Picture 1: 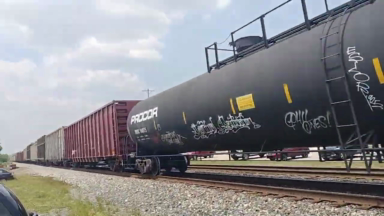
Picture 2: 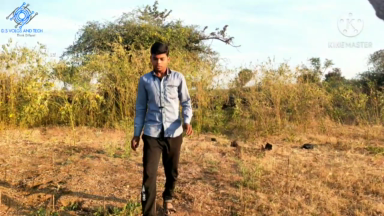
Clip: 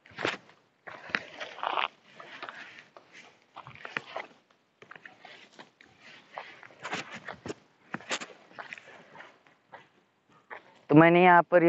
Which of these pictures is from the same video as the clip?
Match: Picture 2